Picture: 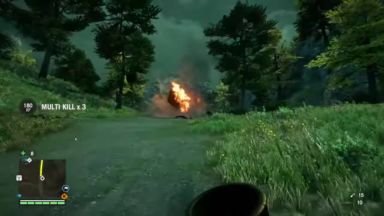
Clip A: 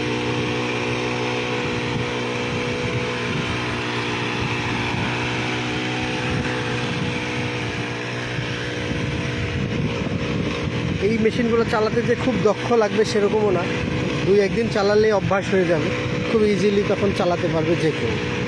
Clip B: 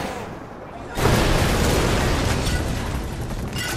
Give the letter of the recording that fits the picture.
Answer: B